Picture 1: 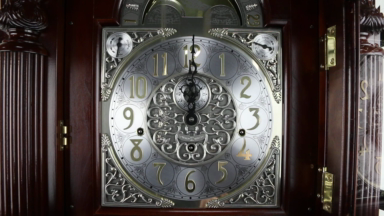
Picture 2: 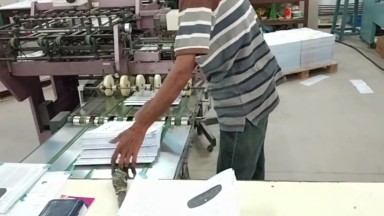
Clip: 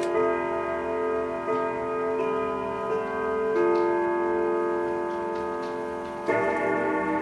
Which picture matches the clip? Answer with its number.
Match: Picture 1